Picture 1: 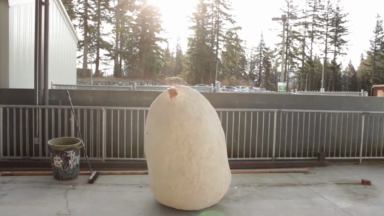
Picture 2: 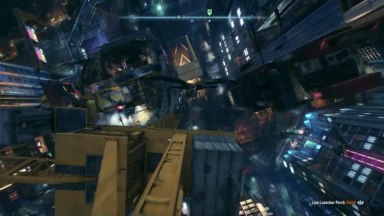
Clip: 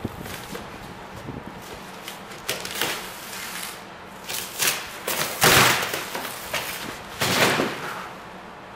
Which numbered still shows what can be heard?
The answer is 1